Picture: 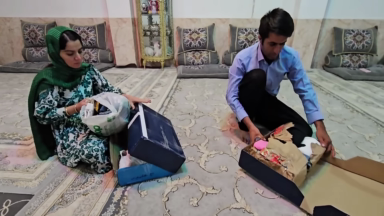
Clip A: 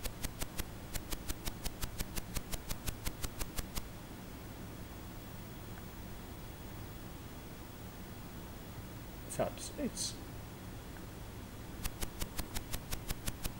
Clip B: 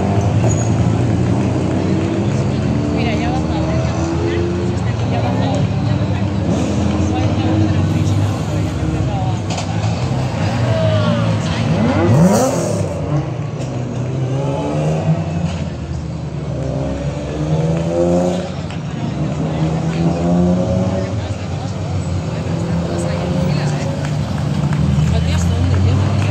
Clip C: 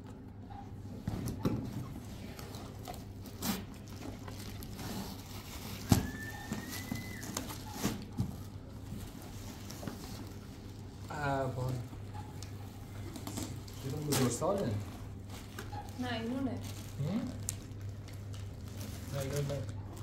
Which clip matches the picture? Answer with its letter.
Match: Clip C